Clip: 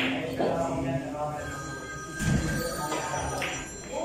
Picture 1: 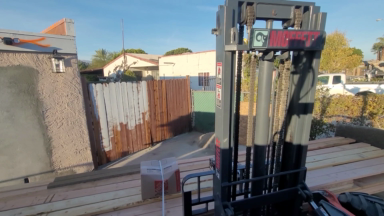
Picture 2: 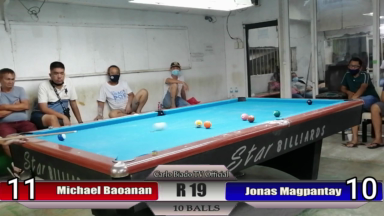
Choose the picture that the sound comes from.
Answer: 2